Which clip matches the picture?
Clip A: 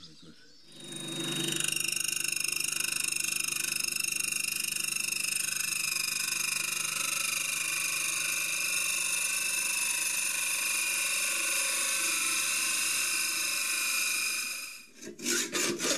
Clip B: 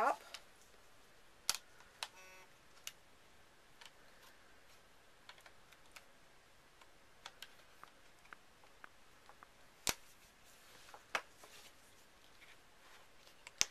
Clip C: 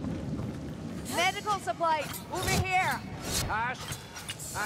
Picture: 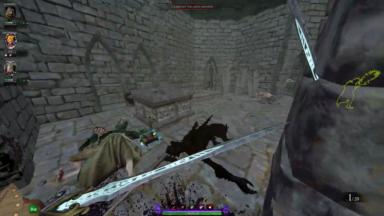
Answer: C